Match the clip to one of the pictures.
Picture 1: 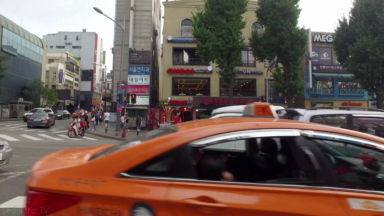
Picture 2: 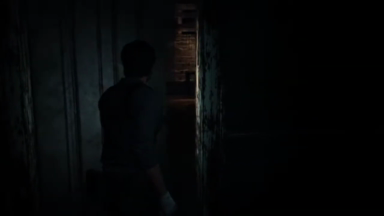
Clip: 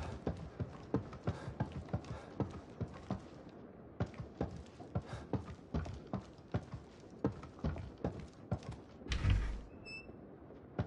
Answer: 2